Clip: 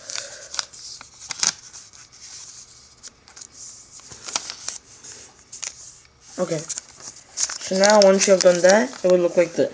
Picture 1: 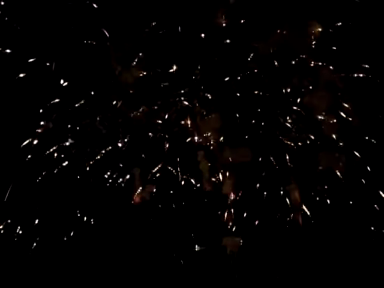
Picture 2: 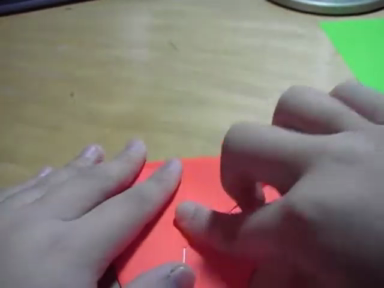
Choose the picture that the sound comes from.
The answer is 2